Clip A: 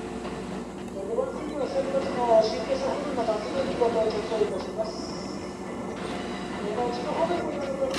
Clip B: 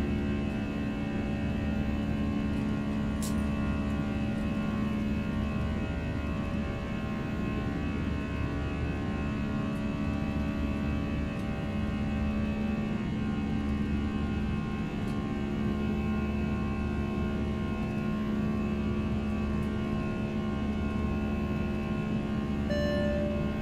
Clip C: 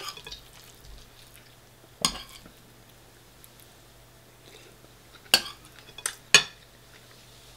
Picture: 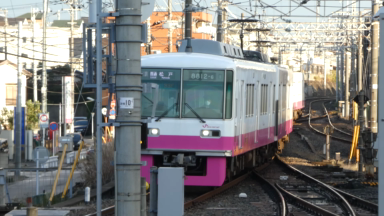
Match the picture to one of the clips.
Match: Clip A